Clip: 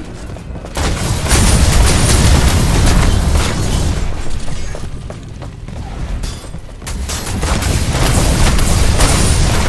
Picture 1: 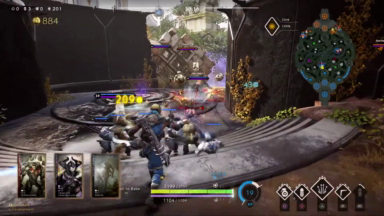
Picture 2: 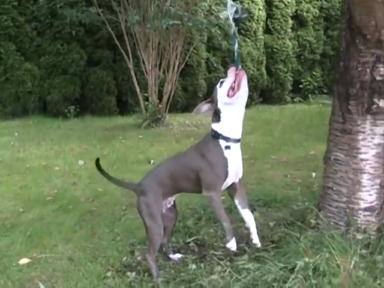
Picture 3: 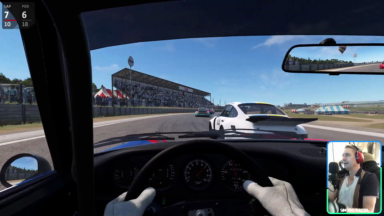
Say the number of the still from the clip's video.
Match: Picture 1